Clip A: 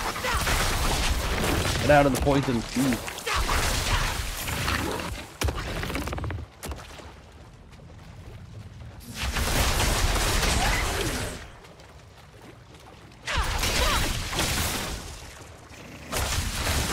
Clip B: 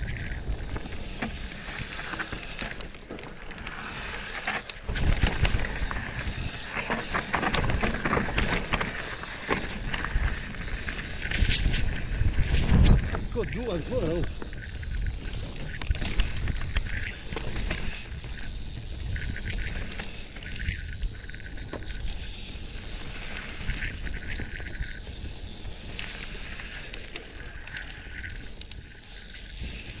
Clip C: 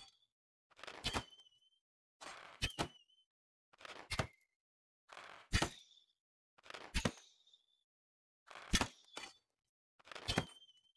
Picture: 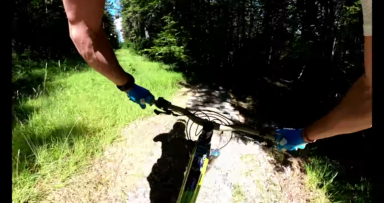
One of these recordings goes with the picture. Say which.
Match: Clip B